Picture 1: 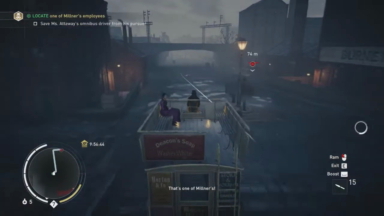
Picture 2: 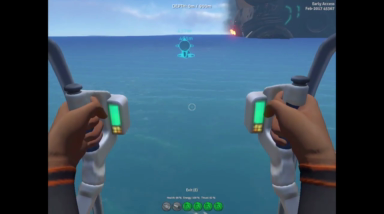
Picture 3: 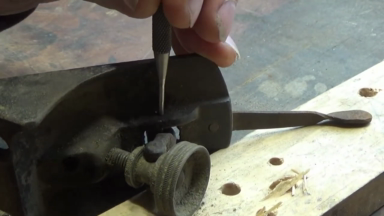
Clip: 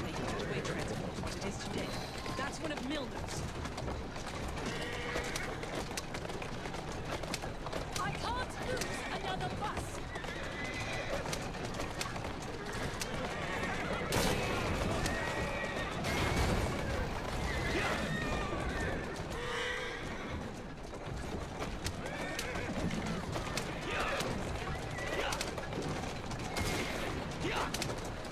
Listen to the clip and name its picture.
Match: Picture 1